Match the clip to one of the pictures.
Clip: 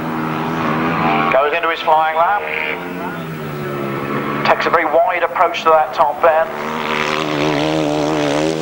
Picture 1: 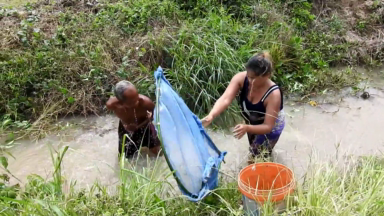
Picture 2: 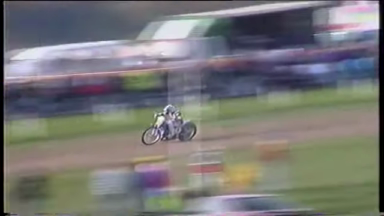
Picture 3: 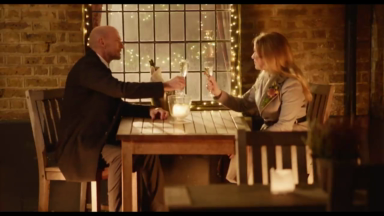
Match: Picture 2